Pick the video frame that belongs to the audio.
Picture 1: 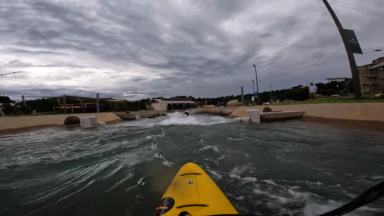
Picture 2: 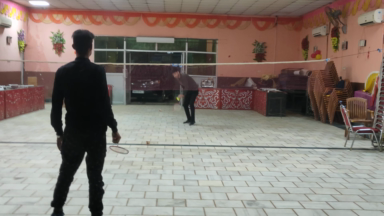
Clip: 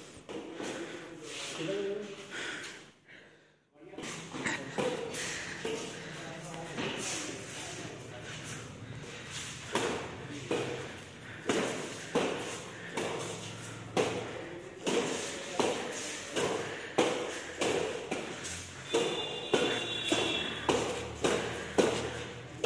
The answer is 2